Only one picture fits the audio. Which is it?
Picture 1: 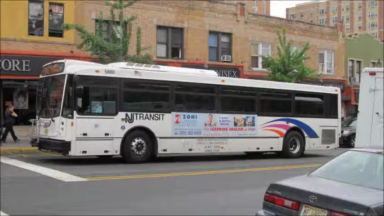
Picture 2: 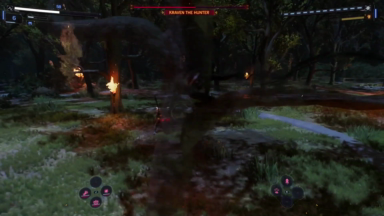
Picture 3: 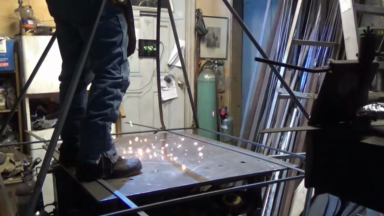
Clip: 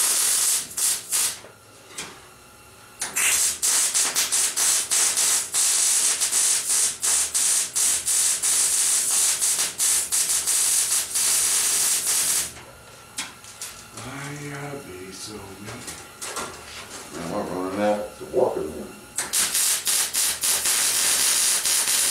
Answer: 3